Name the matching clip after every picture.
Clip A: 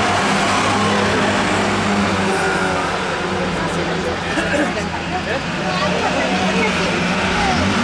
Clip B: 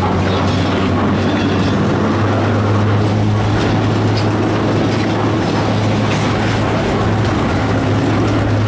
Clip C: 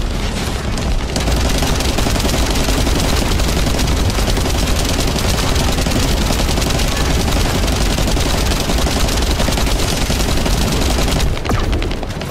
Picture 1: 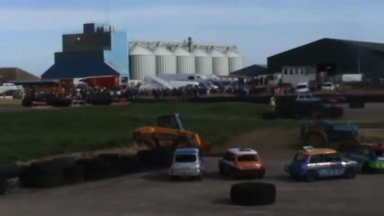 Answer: A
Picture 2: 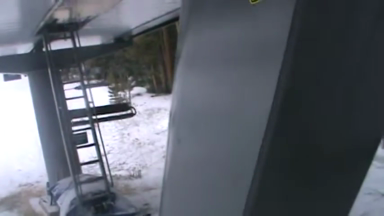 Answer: B